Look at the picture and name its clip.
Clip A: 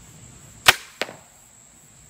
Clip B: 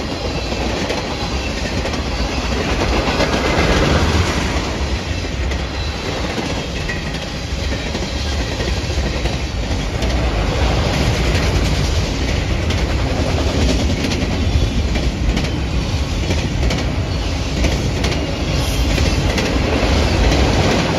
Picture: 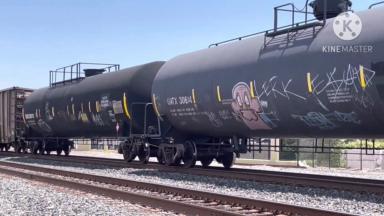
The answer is B